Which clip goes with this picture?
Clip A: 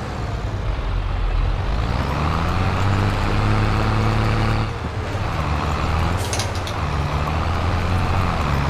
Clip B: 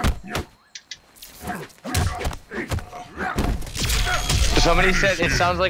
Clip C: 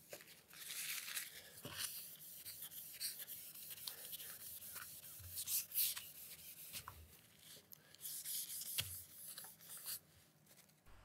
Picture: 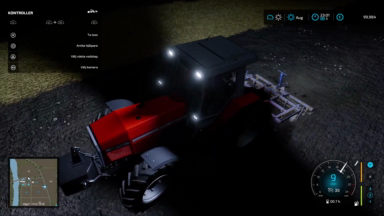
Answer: A